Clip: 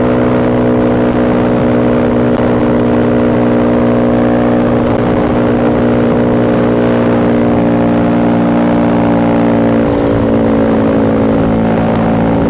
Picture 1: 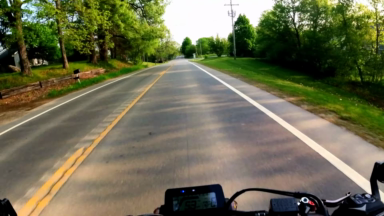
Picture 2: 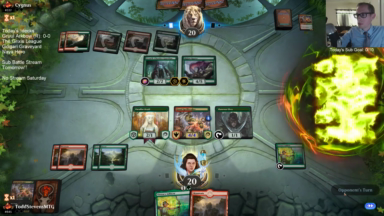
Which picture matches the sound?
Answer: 1